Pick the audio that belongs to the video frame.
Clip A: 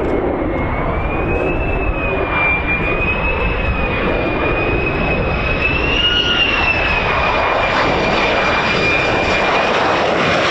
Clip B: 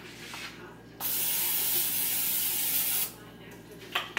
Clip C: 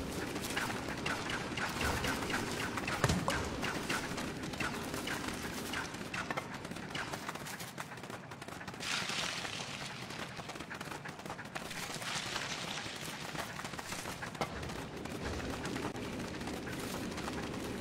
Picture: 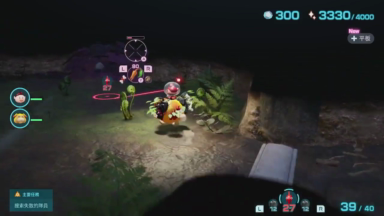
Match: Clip C